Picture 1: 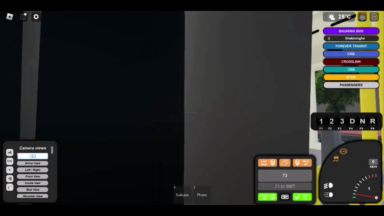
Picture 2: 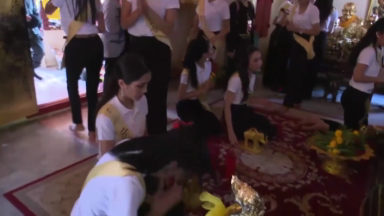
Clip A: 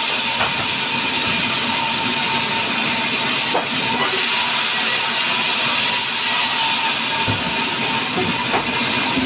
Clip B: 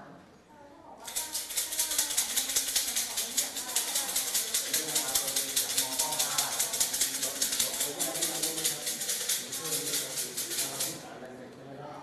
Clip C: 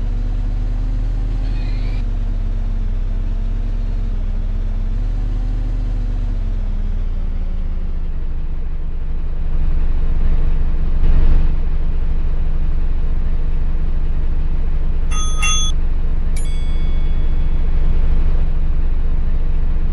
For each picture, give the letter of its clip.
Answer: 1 C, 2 B